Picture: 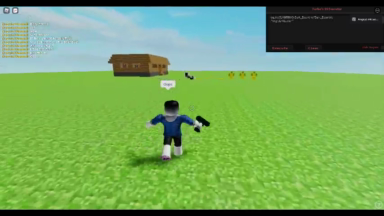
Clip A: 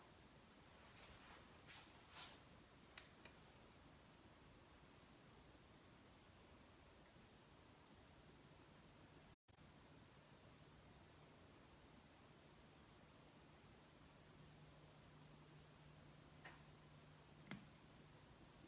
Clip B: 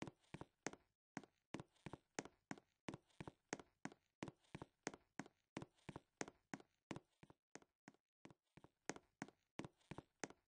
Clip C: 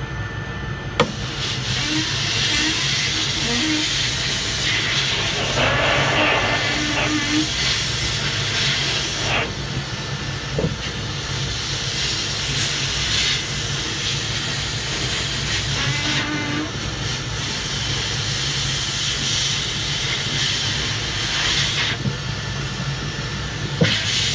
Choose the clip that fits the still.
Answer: B